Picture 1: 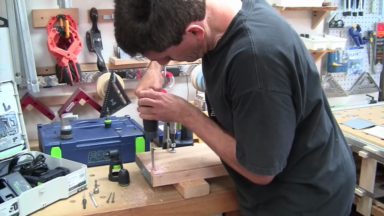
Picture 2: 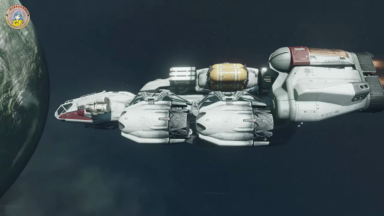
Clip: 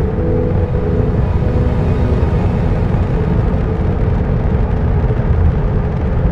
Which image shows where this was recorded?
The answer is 2